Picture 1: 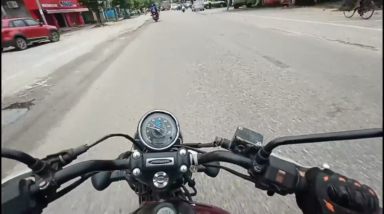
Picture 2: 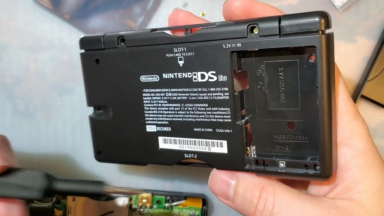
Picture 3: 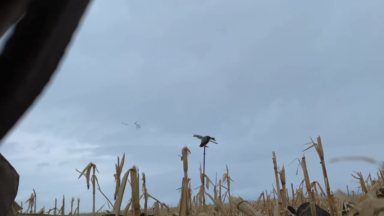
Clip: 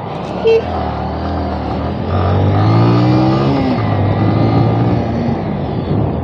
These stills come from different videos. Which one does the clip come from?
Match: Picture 1